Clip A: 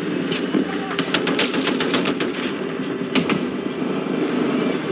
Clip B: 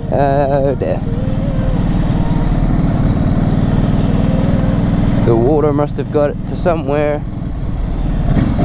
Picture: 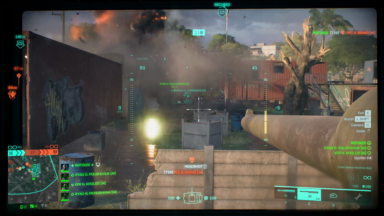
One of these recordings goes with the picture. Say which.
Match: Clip A